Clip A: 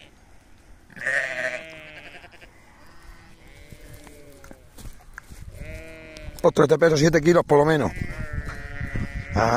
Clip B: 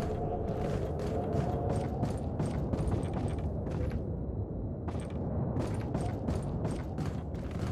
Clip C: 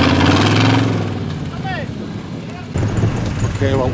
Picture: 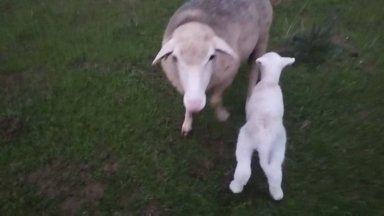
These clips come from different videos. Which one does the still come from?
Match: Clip A